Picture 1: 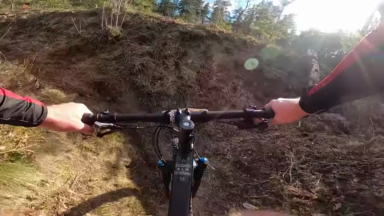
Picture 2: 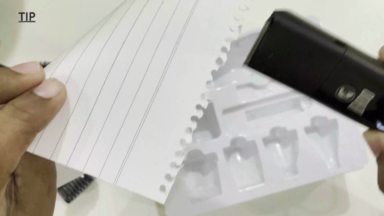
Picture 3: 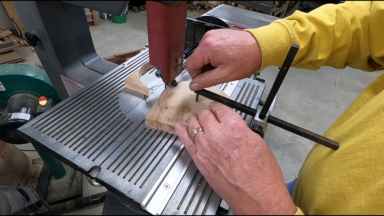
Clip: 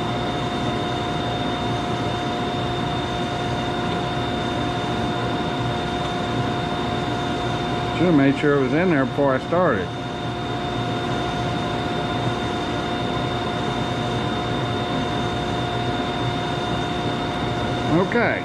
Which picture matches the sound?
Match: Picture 3